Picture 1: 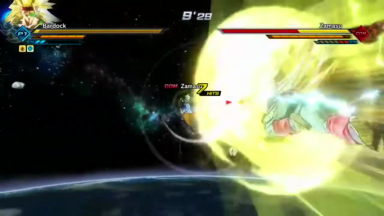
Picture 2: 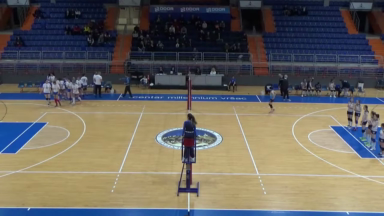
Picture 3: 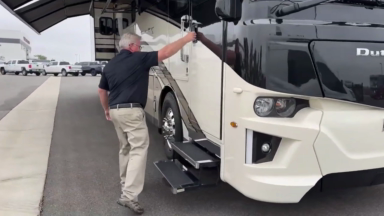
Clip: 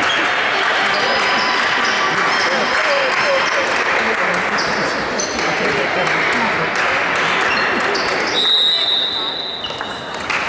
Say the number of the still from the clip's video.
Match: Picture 2